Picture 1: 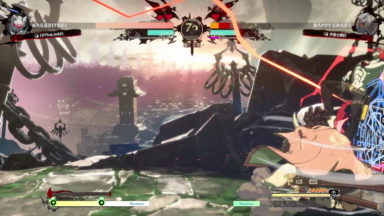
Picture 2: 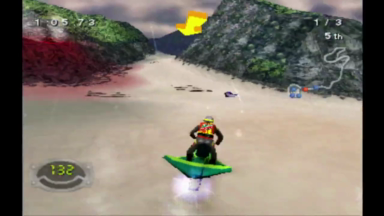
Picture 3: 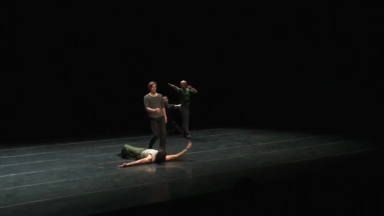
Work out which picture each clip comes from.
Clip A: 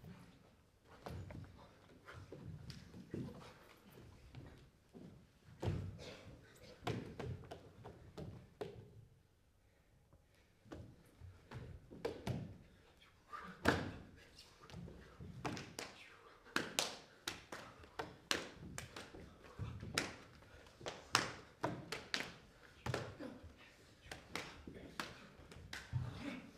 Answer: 3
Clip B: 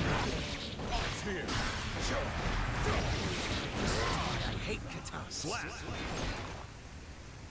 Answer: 1